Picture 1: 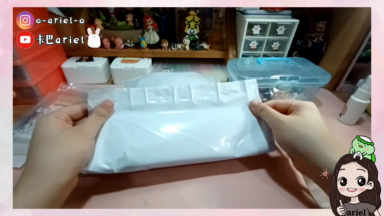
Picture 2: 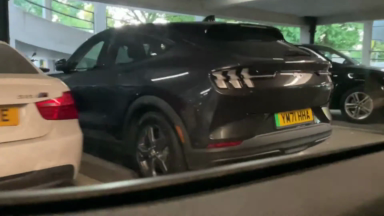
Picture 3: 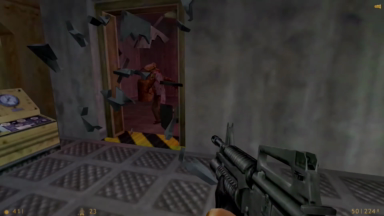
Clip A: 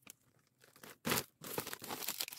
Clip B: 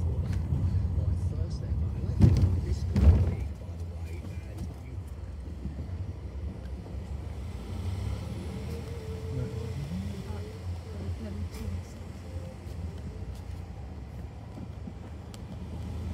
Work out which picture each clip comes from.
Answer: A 1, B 2